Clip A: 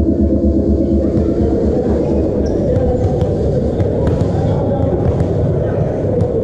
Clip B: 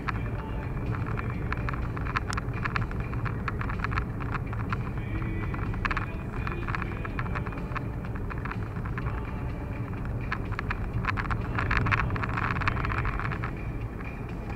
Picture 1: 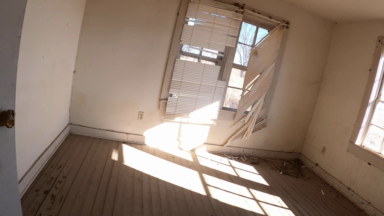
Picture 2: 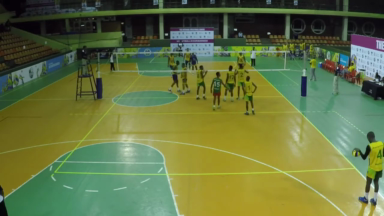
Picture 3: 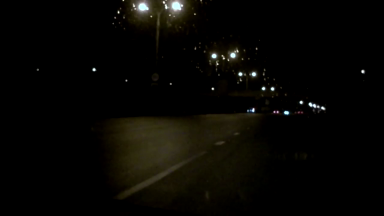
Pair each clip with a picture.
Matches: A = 2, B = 3